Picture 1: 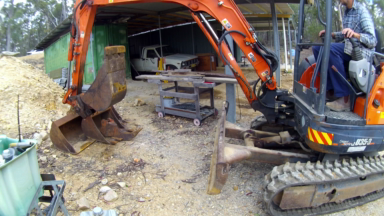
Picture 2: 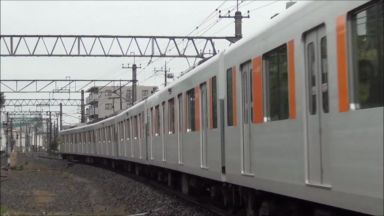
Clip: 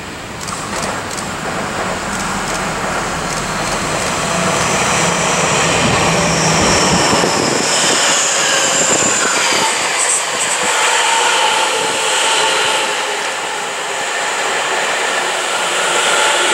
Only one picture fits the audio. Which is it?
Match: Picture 2